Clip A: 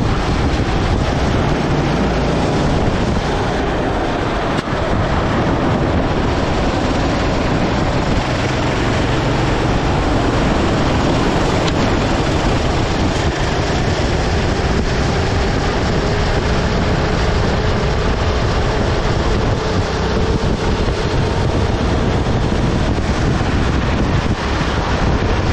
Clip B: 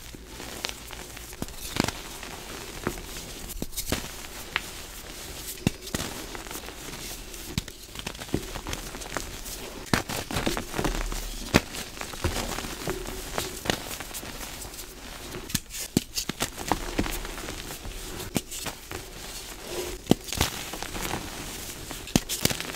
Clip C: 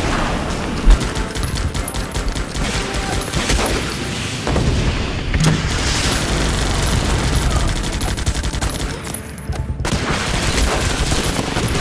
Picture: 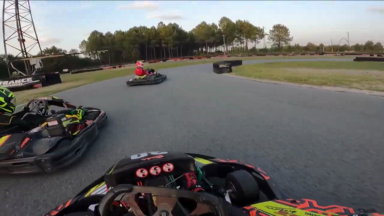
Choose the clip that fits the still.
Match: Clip A